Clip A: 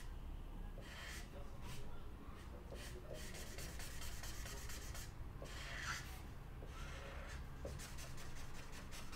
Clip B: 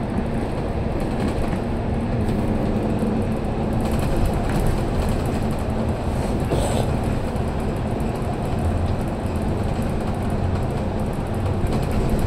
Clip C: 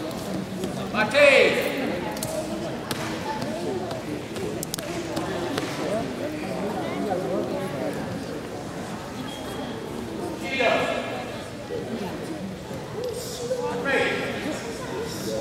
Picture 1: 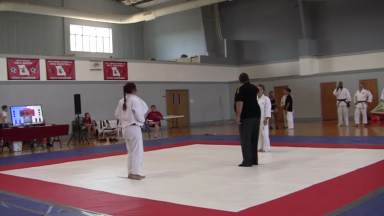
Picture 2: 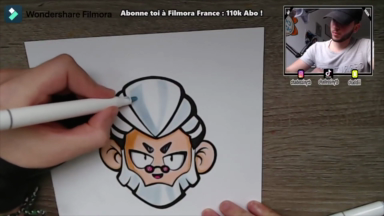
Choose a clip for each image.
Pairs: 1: C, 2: A